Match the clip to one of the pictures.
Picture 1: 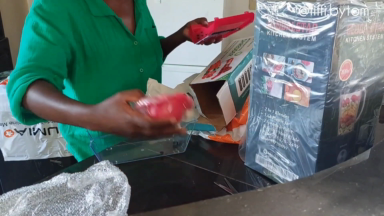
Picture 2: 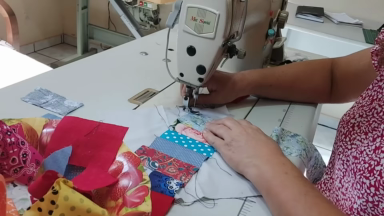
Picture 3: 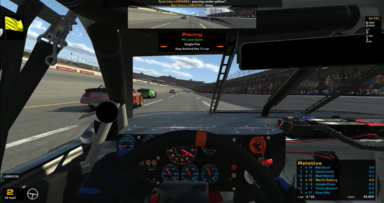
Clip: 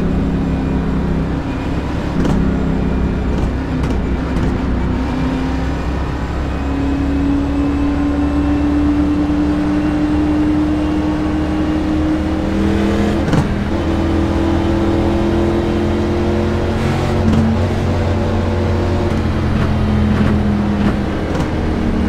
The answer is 3